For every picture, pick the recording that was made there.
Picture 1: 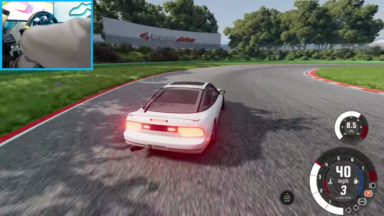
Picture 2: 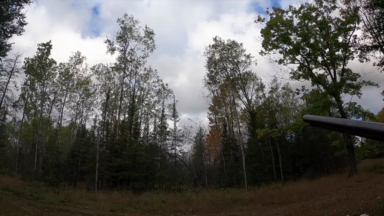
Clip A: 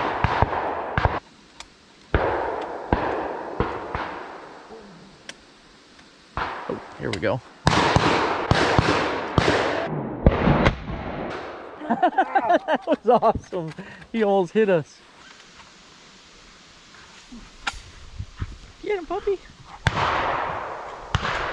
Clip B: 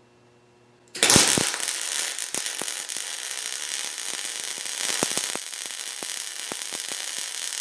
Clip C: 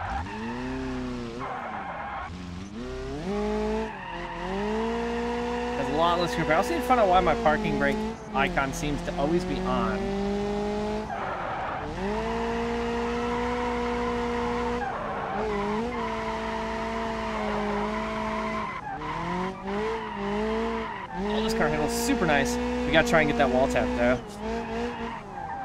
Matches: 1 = C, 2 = A